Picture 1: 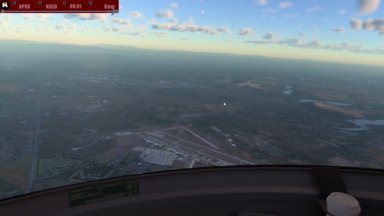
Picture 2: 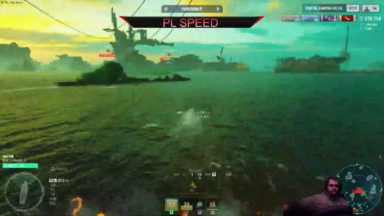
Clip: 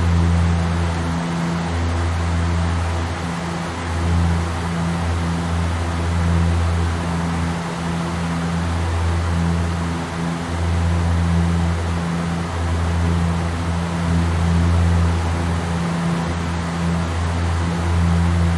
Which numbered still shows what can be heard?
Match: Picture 1